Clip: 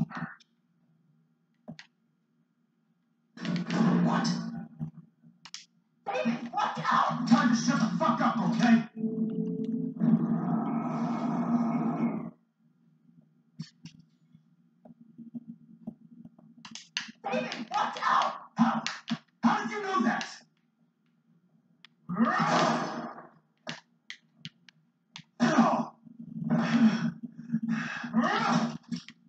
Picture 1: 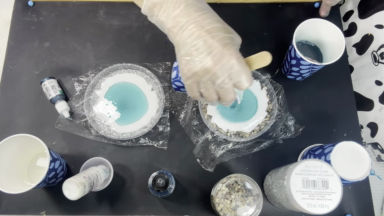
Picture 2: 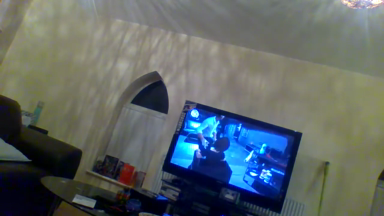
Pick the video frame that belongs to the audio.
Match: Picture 2